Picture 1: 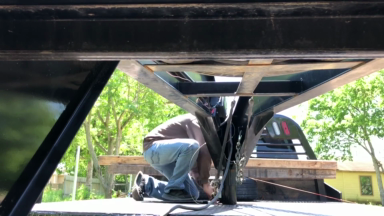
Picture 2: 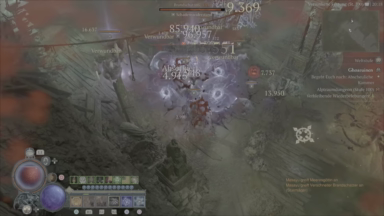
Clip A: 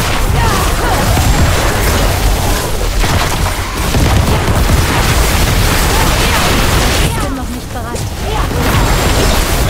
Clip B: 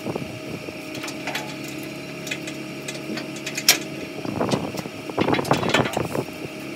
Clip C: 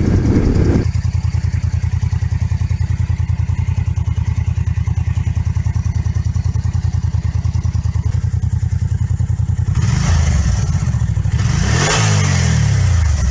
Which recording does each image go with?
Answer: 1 B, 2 A